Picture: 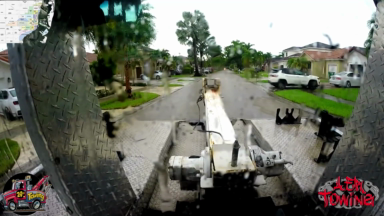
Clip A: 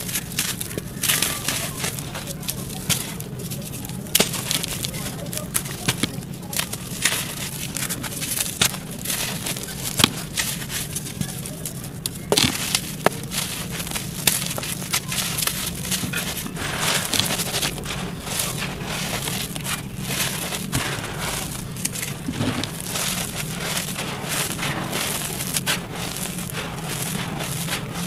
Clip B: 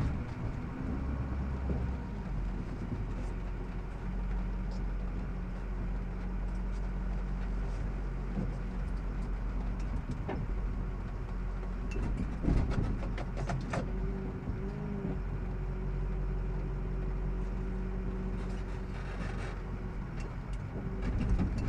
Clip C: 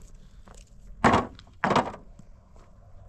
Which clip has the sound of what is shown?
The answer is B